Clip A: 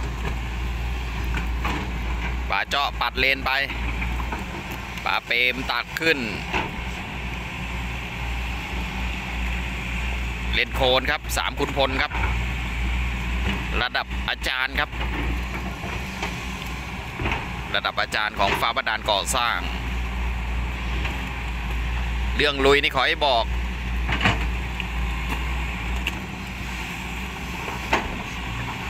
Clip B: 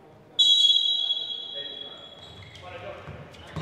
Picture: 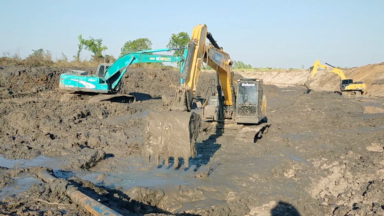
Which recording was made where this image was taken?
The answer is A